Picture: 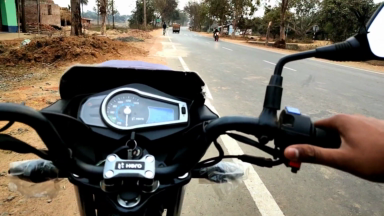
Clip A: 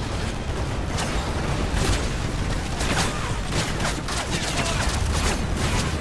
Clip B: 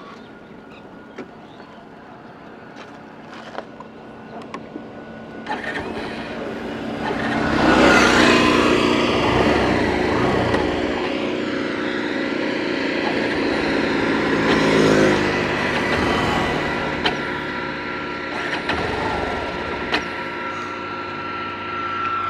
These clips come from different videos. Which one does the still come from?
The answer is B